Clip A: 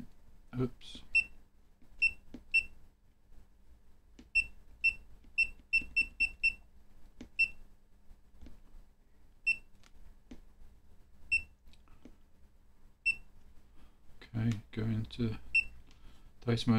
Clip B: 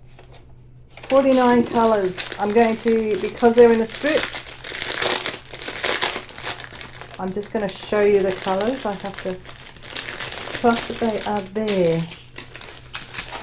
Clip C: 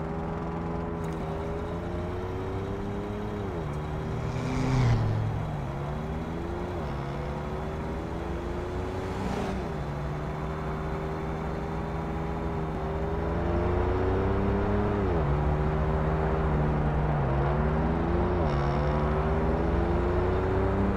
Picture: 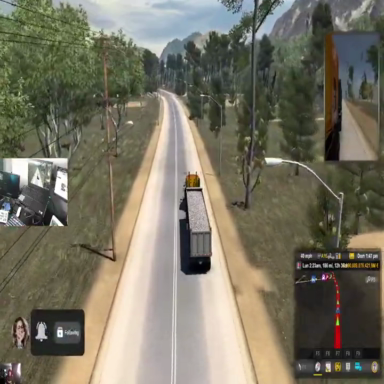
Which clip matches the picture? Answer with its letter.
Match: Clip C